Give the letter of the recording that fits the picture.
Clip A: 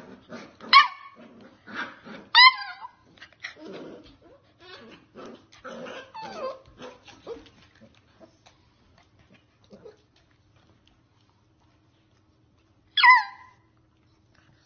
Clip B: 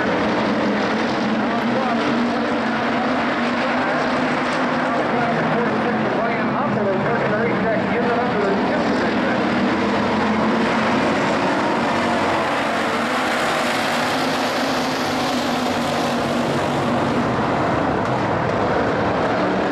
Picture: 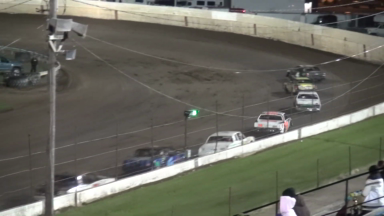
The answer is B